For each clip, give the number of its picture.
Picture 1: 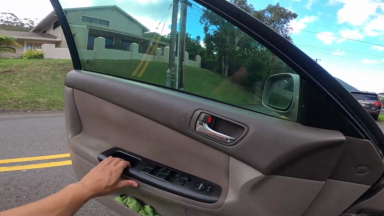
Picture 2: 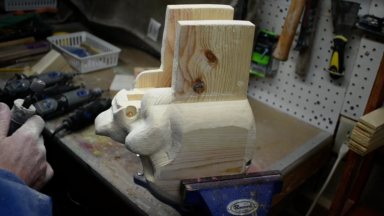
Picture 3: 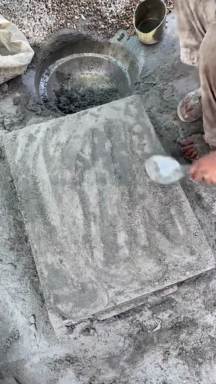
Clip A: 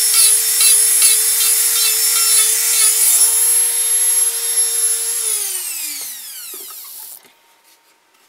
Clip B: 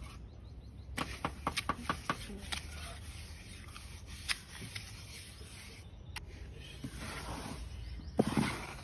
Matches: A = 2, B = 3